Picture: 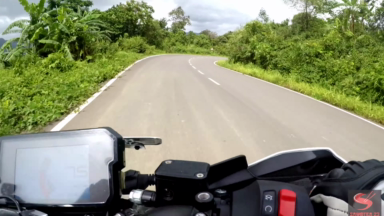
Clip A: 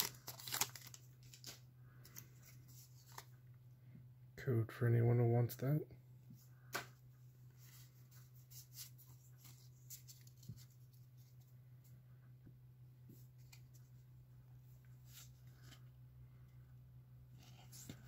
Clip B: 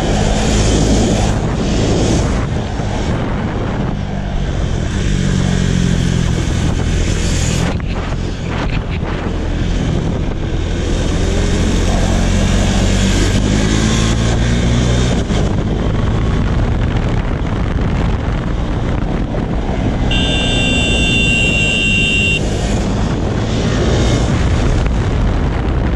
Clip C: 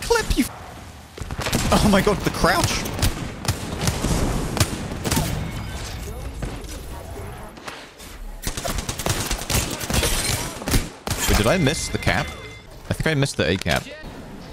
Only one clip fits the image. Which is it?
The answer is B